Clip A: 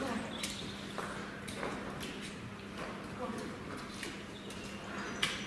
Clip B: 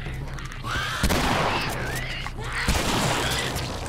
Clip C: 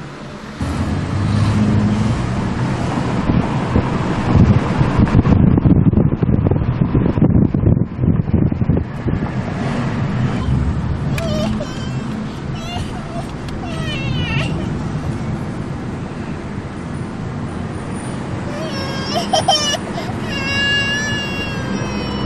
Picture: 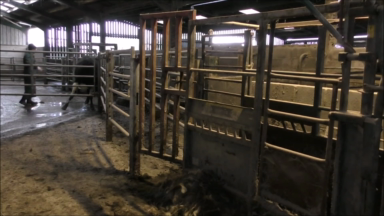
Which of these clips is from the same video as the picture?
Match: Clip A